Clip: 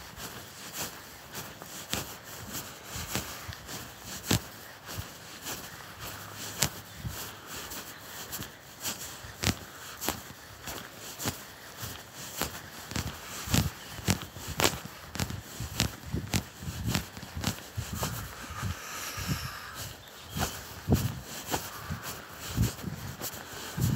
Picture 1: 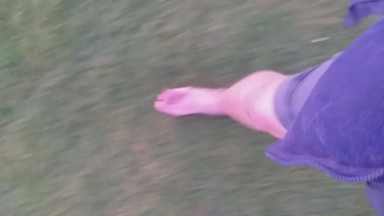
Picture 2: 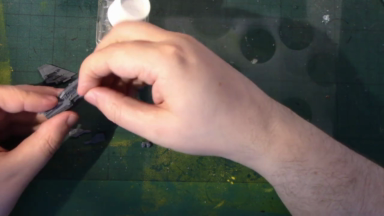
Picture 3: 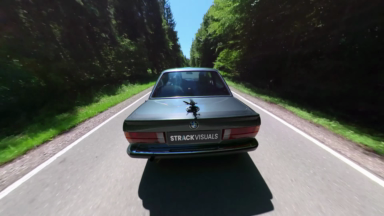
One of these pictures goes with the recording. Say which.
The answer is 1